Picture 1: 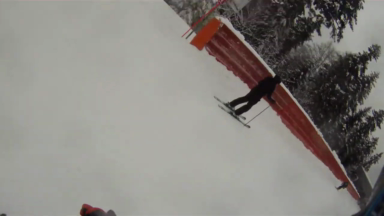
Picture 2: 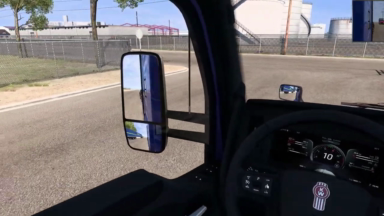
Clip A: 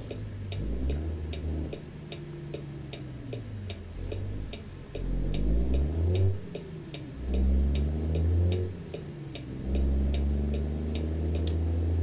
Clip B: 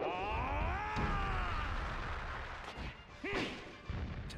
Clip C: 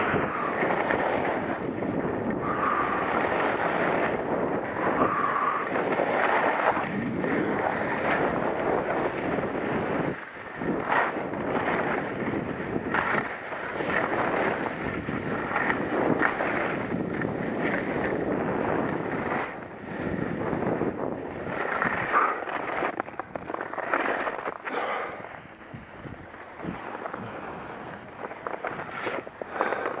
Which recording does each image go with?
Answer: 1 C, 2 A